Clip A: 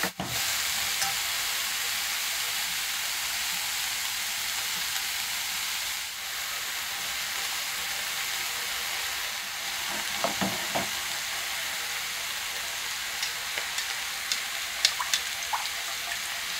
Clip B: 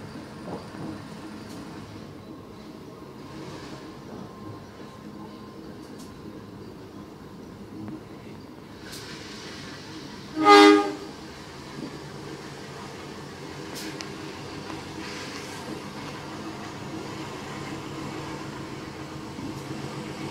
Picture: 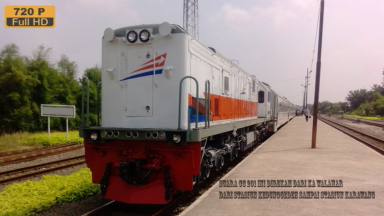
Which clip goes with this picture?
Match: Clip B